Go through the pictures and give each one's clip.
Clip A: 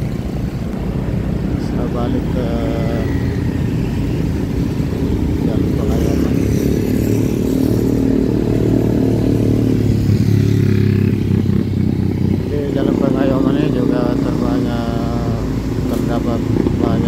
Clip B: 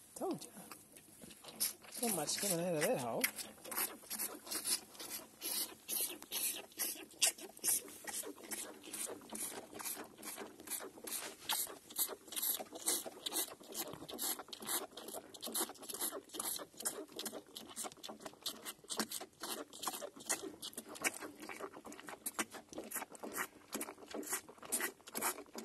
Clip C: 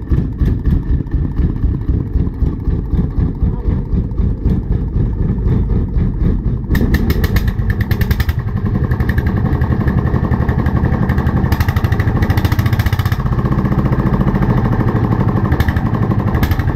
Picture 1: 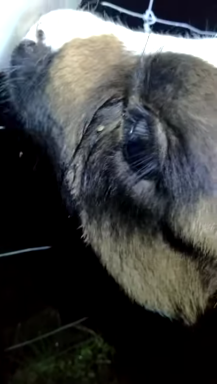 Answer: B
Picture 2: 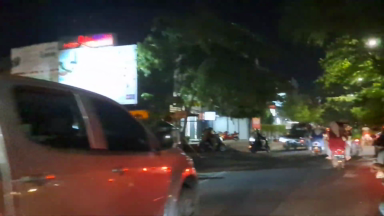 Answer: A